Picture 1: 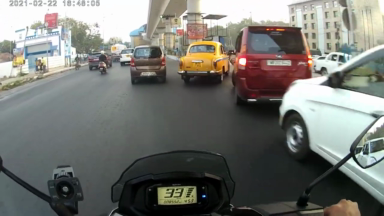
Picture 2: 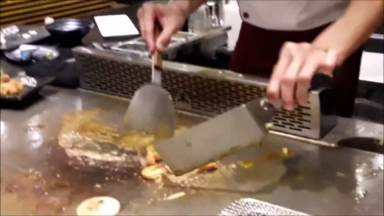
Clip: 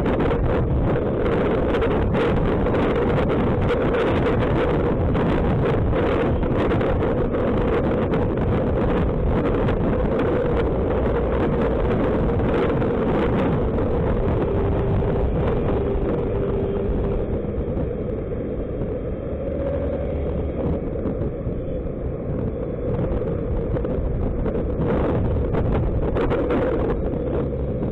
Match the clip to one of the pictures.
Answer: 1